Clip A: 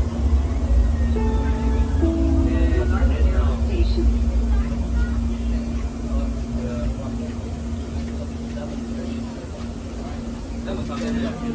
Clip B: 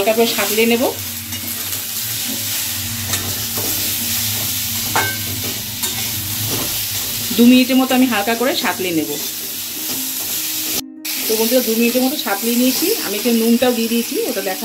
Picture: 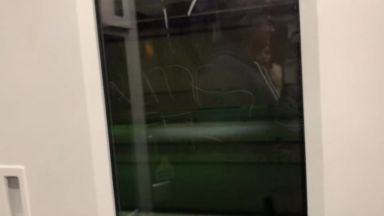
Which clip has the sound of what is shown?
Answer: A